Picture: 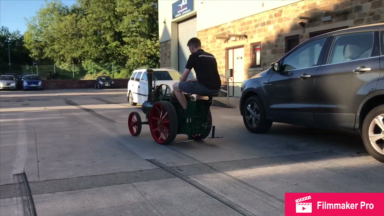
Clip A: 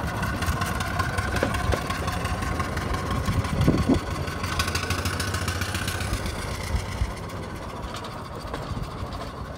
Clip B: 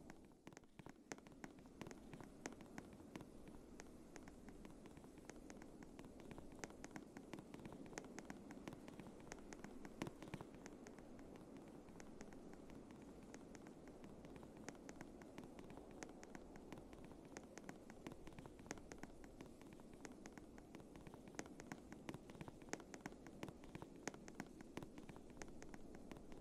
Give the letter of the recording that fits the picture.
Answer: A